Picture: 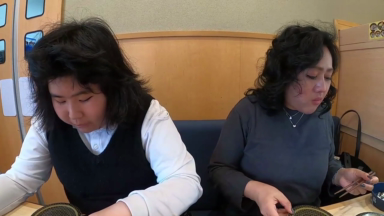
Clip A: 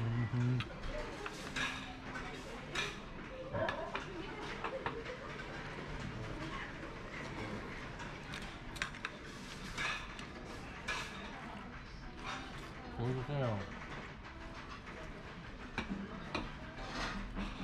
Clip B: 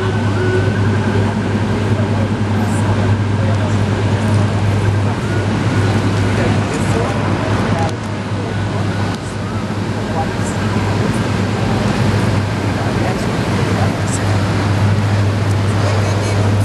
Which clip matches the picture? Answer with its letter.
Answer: A